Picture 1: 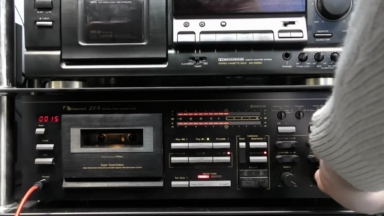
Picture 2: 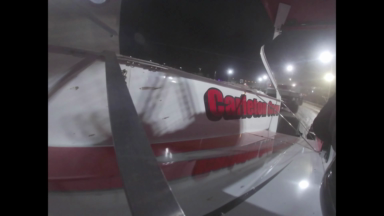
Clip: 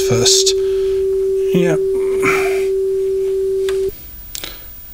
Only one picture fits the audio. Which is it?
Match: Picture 1